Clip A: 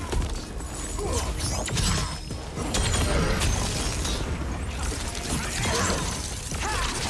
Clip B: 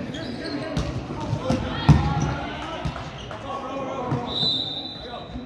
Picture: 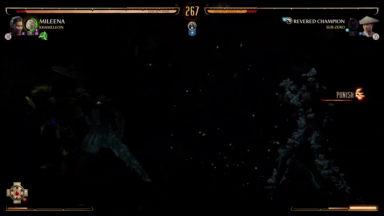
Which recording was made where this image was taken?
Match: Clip A